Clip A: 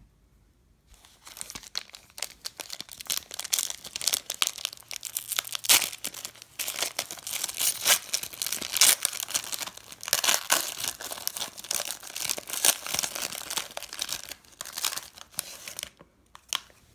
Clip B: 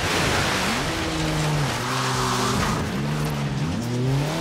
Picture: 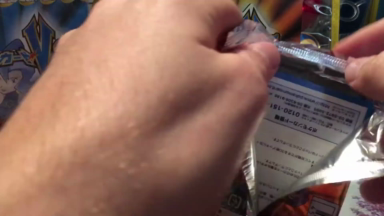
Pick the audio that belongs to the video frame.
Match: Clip A